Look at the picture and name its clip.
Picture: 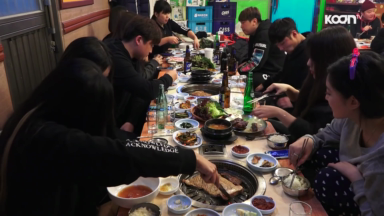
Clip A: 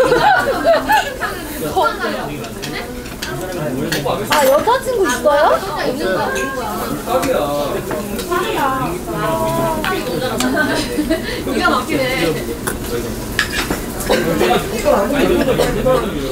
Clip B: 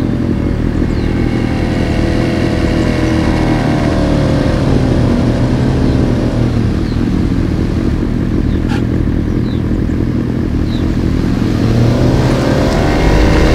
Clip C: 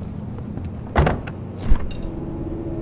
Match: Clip A